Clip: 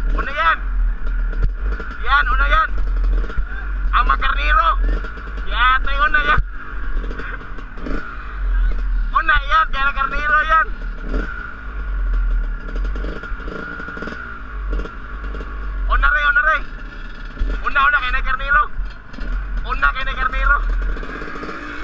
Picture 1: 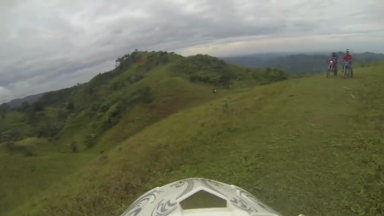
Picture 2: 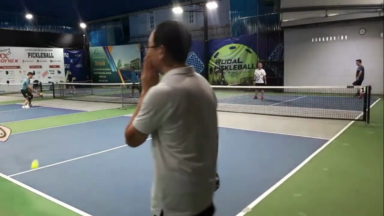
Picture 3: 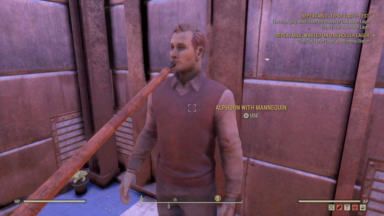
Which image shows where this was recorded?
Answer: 1